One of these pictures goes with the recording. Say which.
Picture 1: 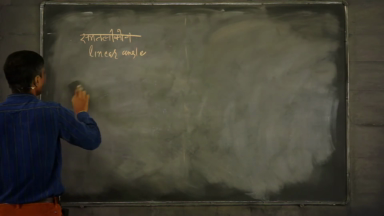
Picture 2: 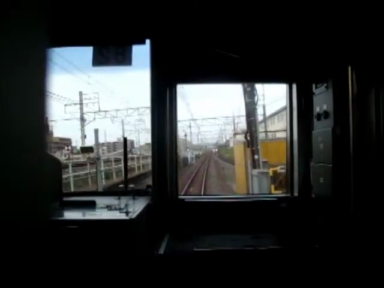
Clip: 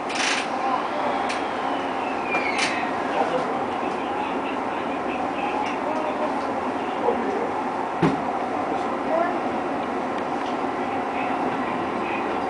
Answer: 2